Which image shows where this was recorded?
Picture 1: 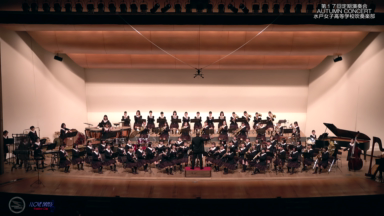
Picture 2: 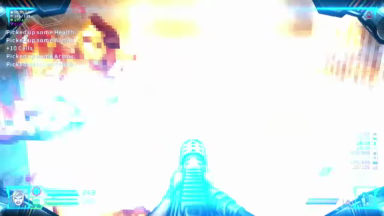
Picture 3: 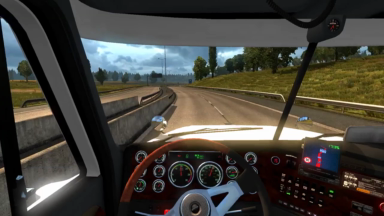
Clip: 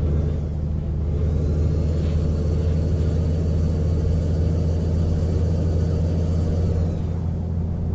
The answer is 3